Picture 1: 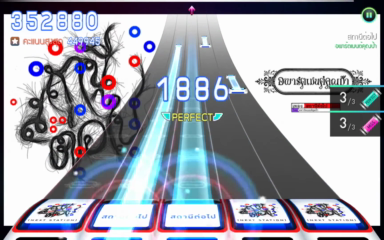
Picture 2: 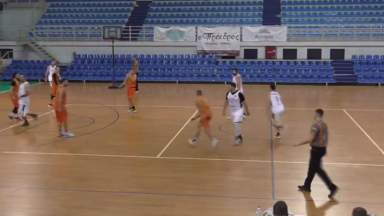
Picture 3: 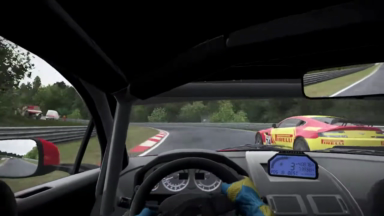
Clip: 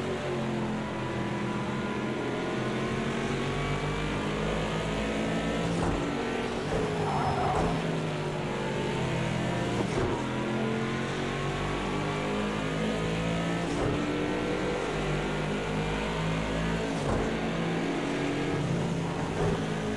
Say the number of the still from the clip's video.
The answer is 3